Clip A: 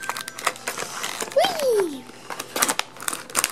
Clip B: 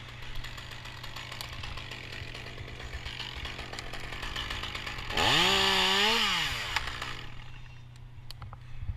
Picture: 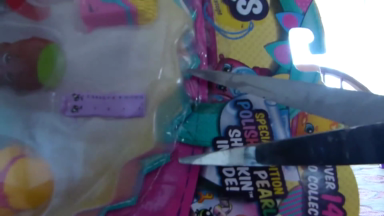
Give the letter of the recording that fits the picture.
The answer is A